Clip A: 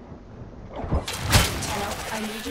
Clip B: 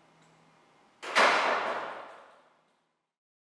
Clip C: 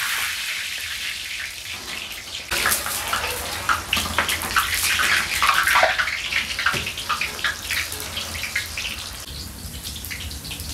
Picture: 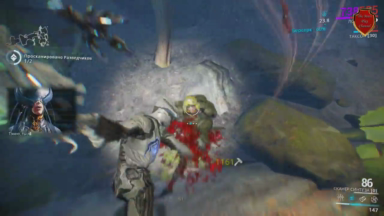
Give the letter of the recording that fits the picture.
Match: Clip A